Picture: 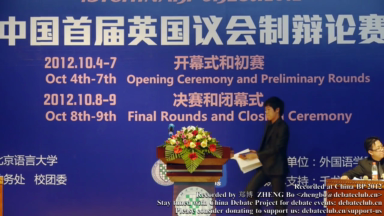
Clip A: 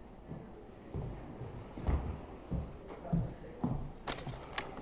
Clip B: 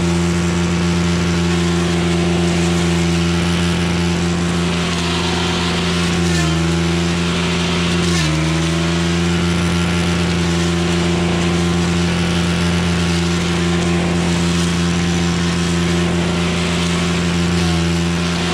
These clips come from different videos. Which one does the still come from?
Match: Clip A